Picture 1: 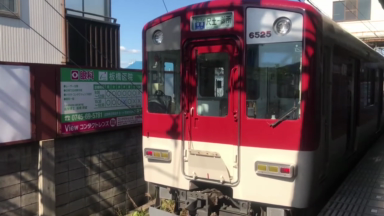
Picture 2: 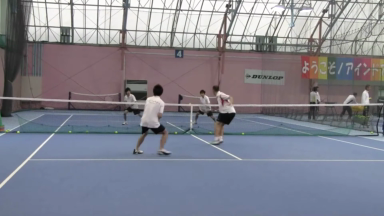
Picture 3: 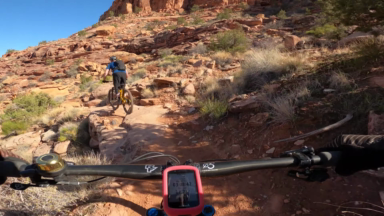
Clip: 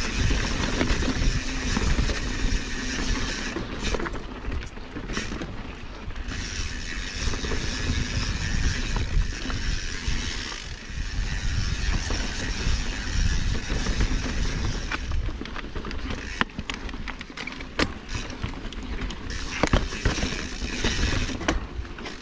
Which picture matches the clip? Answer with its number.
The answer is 3